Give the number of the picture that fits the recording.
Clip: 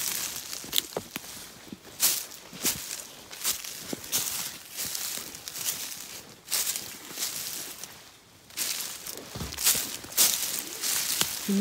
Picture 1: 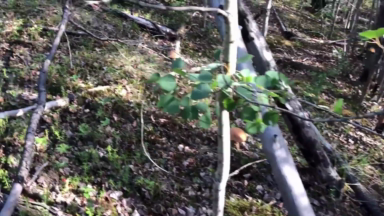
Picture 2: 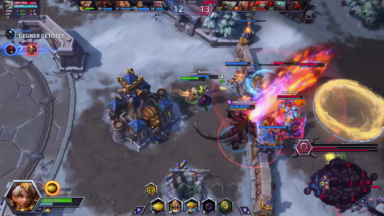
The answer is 1